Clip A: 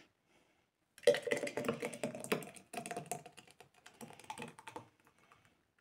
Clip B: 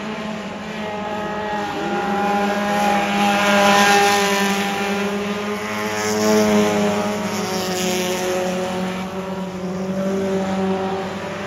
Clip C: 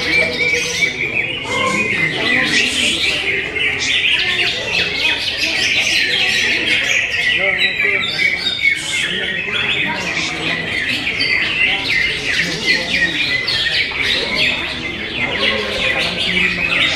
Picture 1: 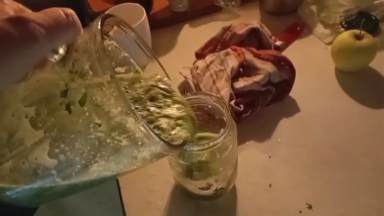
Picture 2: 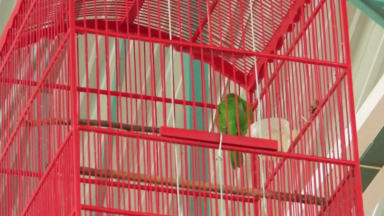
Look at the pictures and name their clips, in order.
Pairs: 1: A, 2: C